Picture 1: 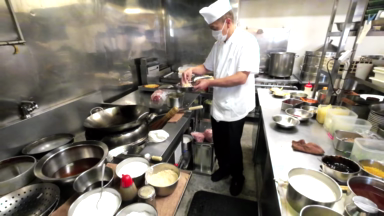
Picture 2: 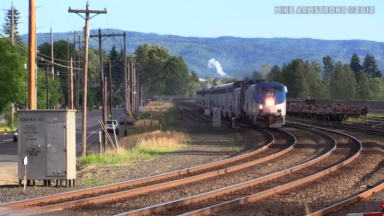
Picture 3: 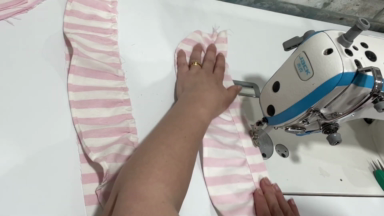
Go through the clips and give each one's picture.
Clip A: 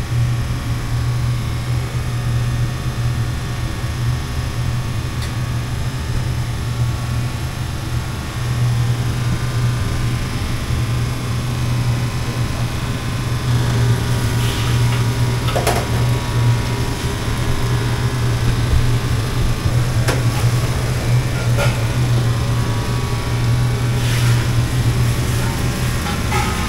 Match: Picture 1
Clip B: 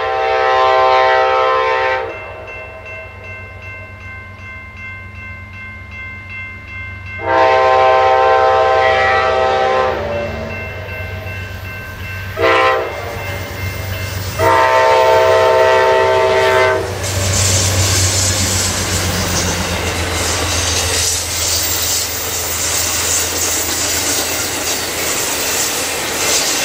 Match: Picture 2